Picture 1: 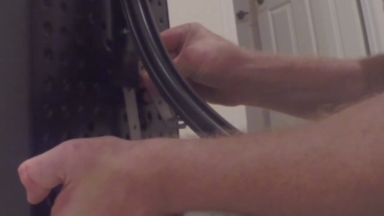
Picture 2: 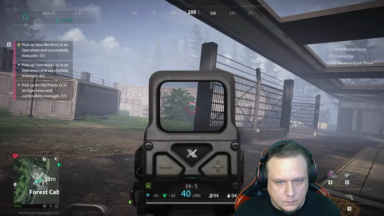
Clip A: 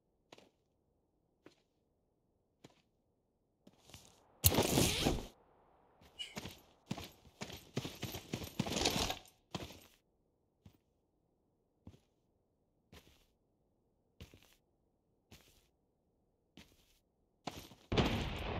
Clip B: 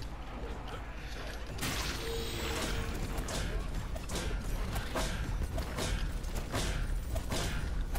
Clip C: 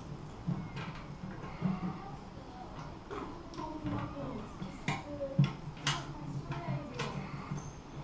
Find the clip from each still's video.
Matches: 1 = C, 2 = A